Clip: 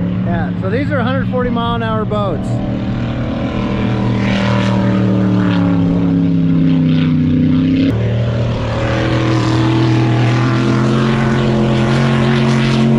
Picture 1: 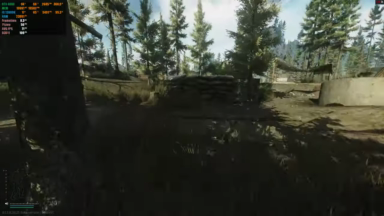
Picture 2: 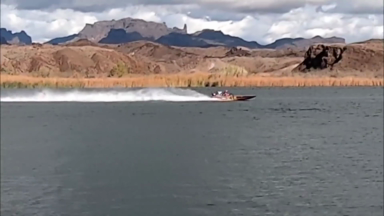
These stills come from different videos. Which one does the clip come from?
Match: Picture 2